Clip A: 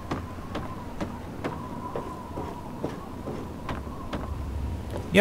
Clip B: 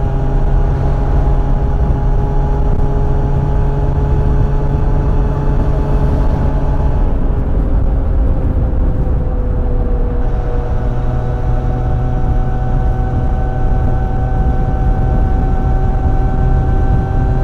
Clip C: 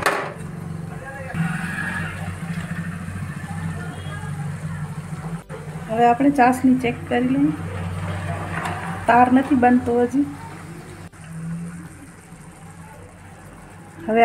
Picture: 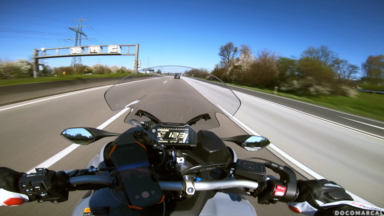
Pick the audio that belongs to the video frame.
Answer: B